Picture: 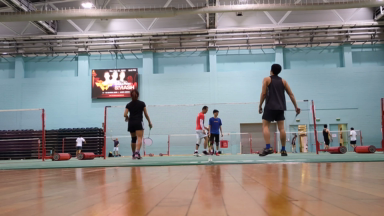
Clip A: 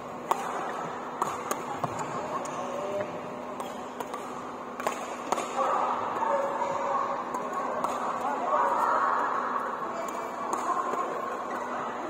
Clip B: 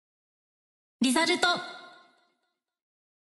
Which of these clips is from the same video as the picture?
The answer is A